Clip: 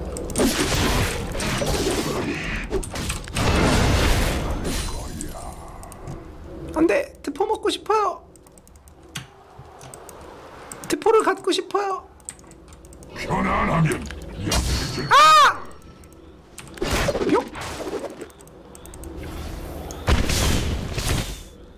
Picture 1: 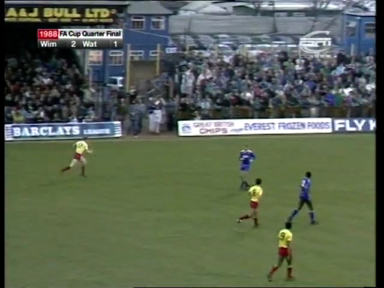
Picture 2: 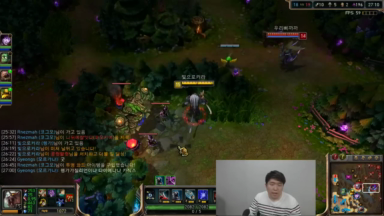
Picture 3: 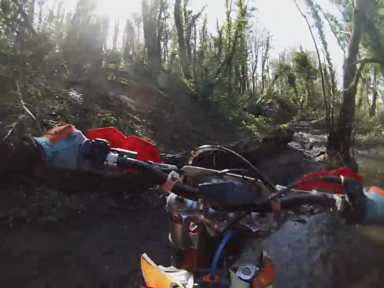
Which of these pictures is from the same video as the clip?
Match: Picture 2